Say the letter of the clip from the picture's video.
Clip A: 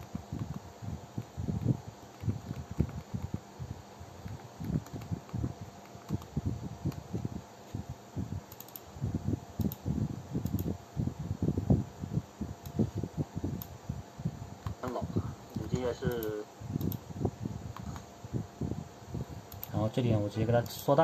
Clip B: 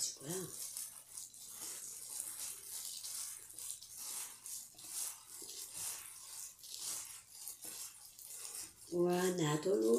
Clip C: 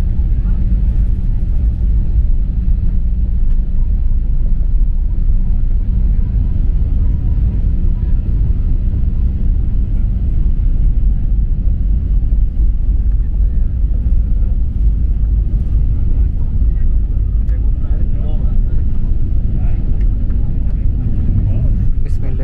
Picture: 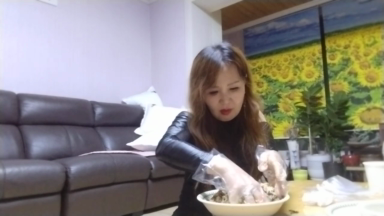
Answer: B